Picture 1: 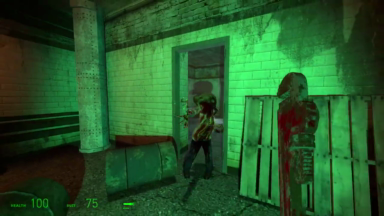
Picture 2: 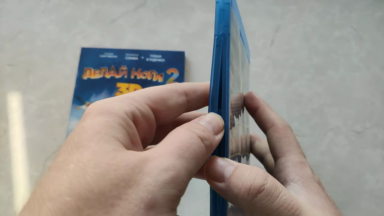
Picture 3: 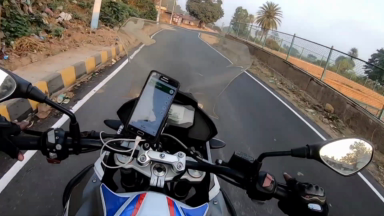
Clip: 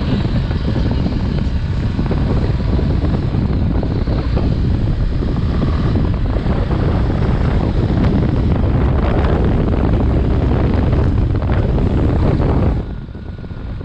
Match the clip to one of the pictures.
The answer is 3